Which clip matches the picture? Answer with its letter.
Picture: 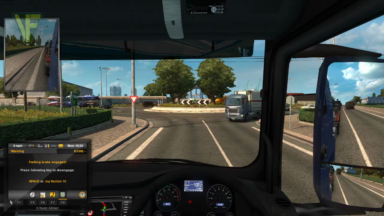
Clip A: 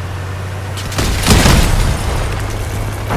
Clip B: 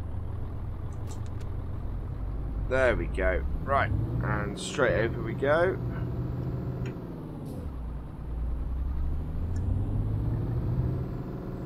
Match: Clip B